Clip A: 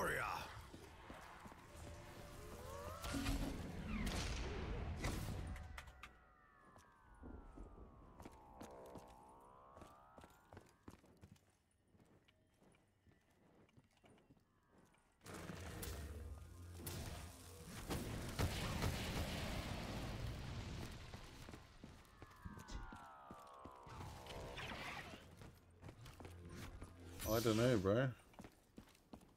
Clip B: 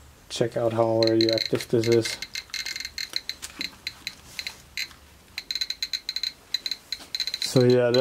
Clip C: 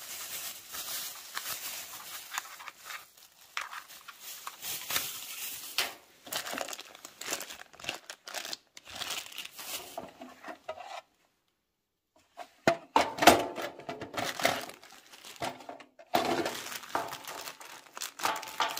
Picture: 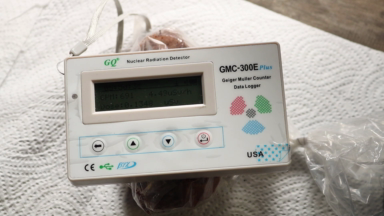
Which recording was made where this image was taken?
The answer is B